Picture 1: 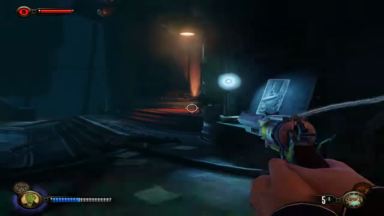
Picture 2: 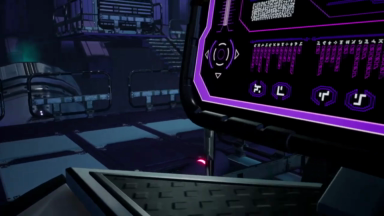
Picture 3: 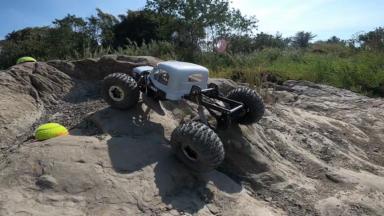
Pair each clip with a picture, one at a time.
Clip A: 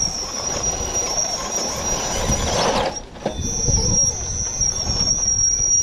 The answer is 3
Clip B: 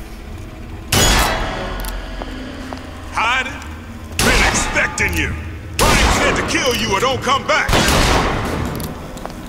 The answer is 1